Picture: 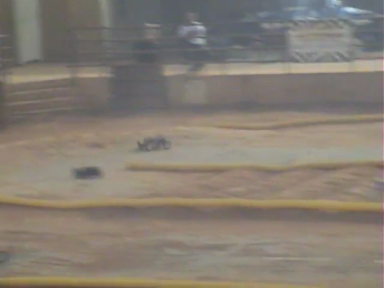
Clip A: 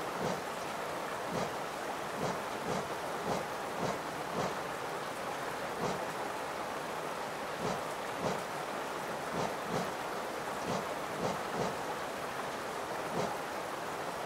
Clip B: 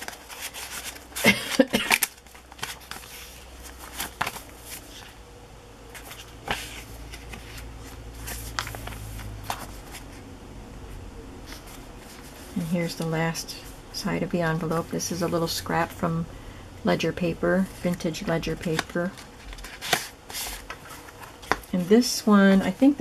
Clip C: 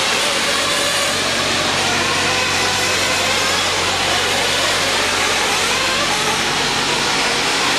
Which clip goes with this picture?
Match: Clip C